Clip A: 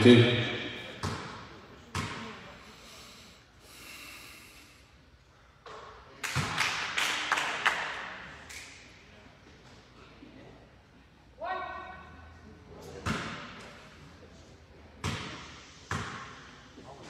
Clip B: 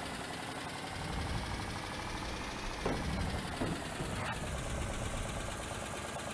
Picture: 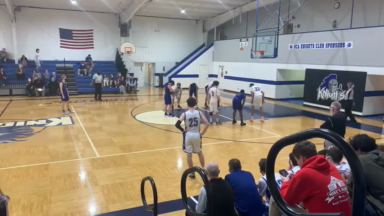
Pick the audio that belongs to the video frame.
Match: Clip A